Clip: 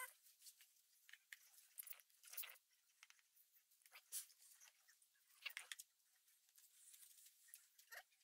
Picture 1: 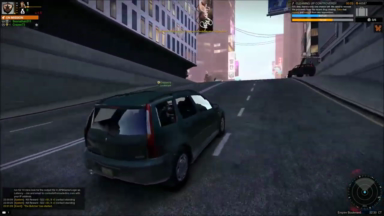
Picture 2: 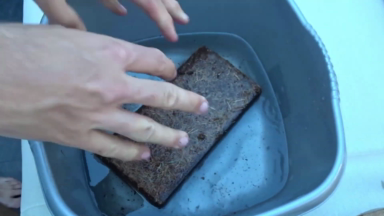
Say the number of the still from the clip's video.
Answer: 2